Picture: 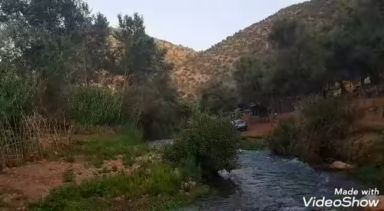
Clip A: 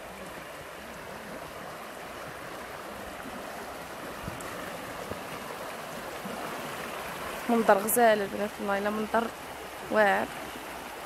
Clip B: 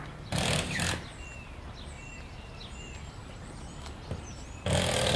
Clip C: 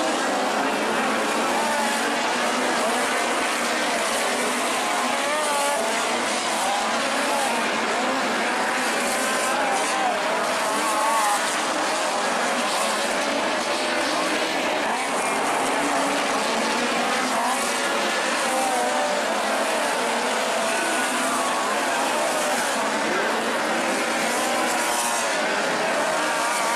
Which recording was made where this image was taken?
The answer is A